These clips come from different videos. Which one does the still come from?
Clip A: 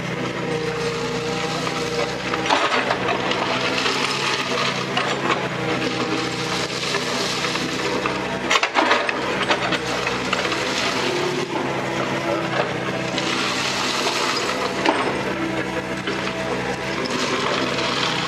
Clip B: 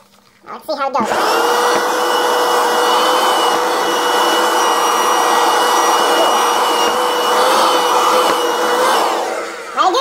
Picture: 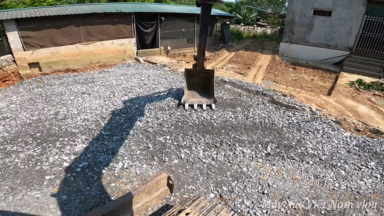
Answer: A